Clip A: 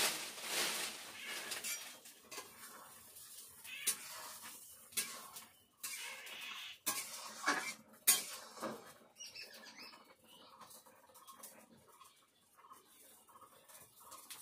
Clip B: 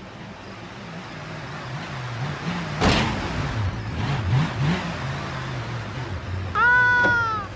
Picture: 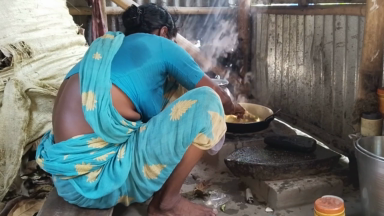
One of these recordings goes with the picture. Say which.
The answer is A